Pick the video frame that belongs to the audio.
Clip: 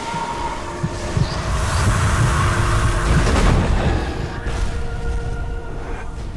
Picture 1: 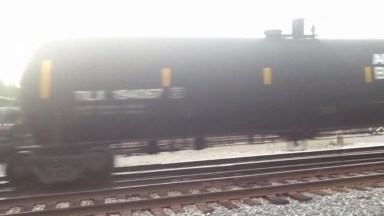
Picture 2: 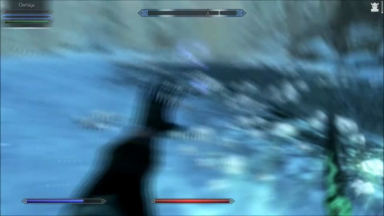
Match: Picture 2